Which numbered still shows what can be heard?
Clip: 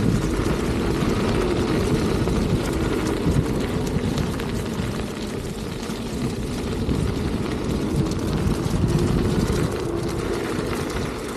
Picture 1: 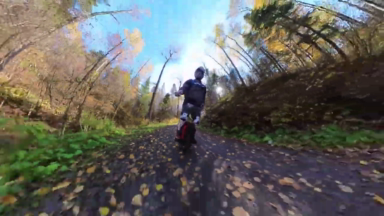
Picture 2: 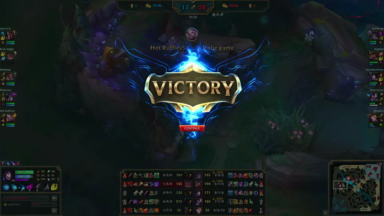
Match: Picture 1